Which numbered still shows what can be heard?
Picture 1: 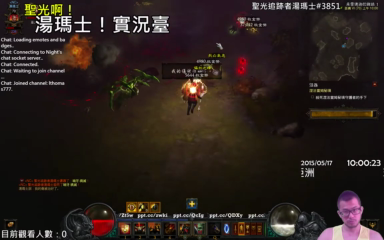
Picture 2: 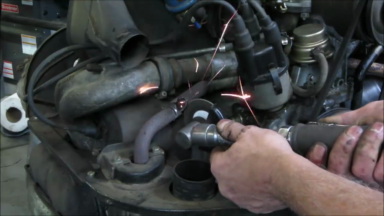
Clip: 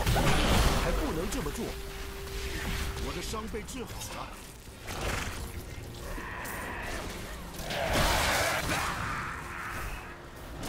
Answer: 1